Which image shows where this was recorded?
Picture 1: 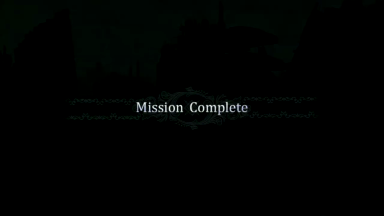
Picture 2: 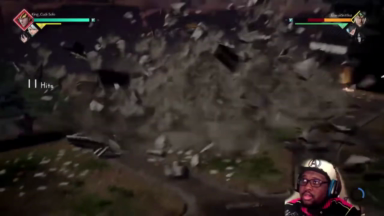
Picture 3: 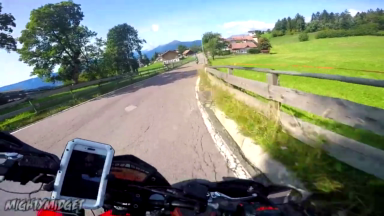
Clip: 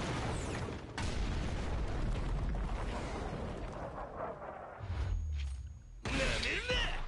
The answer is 2